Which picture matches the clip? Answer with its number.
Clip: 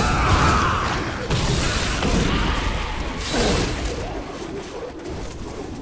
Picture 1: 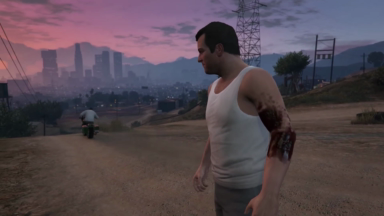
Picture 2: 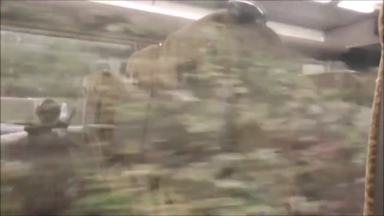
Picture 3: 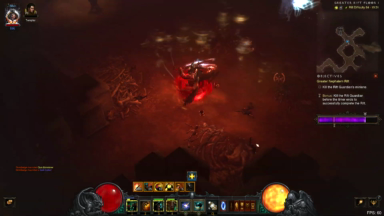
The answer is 3